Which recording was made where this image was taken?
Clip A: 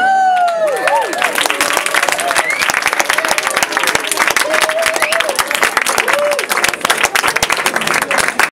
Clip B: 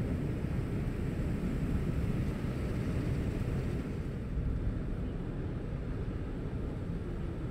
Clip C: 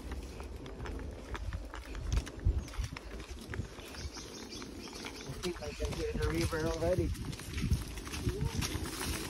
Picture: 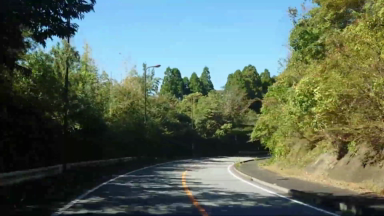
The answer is B